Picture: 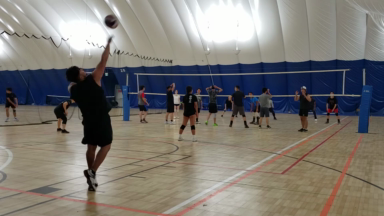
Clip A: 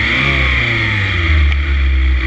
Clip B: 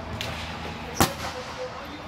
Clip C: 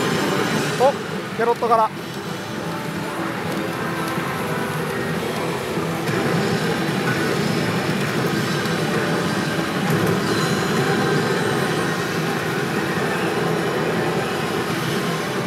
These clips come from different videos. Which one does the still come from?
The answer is B